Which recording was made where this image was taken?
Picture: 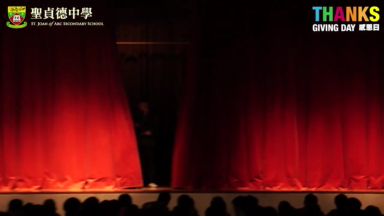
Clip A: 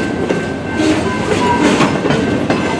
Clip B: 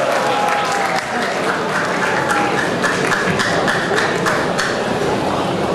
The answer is B